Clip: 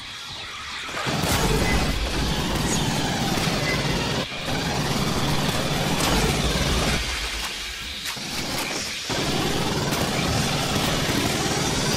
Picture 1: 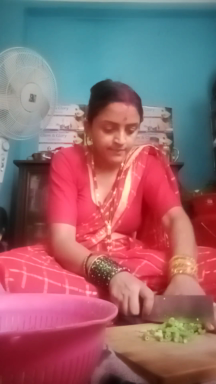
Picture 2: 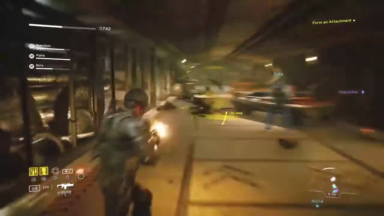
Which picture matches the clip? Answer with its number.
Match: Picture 2